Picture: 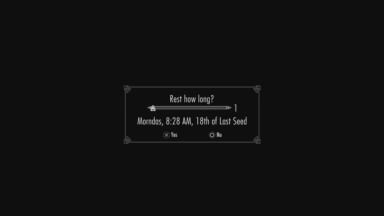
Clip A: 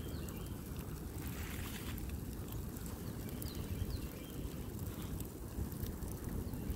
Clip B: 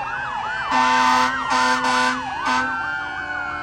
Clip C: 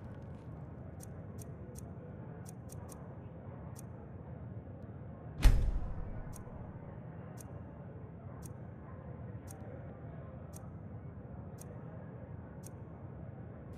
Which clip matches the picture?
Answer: C